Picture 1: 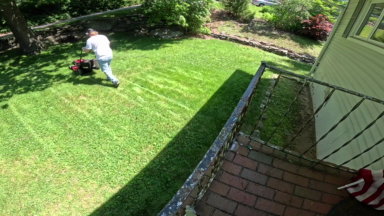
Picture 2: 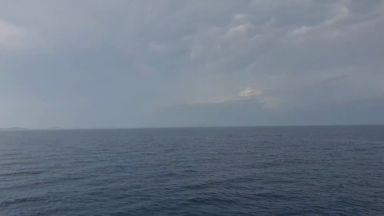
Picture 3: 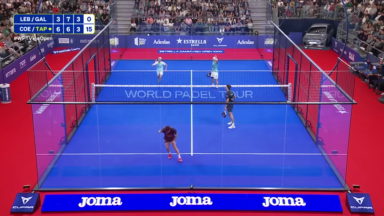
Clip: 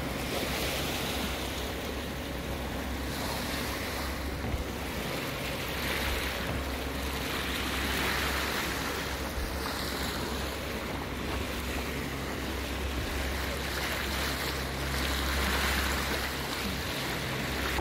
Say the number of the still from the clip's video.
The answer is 2